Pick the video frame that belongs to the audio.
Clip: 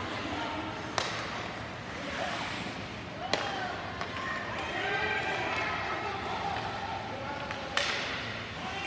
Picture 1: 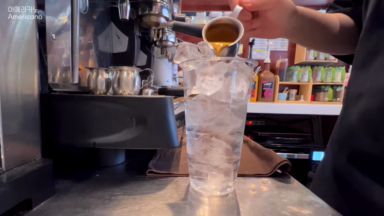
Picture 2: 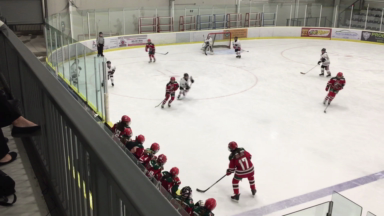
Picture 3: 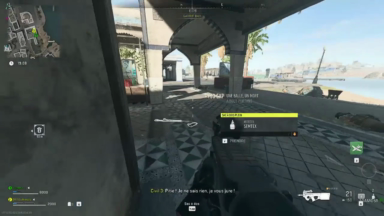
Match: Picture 2